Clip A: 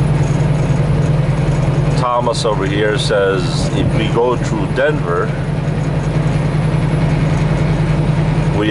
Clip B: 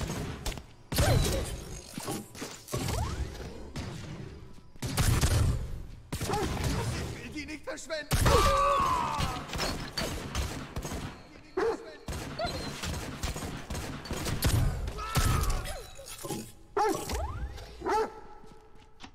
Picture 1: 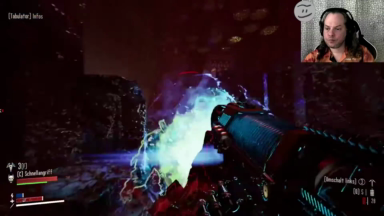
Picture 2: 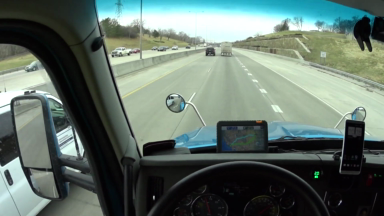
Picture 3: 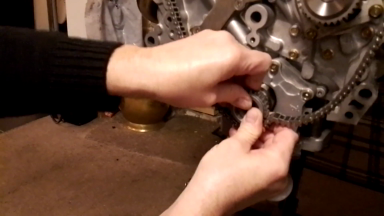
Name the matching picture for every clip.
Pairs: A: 2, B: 1